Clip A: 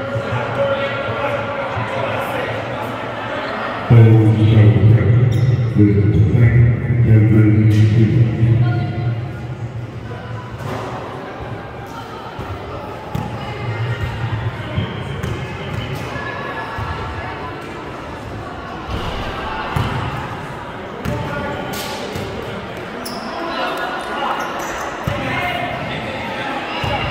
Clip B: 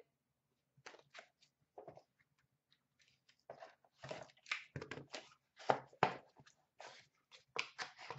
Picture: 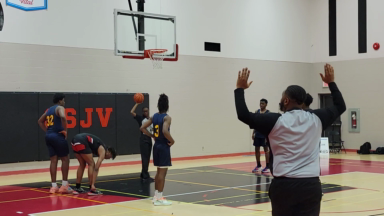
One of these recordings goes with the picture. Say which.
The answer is A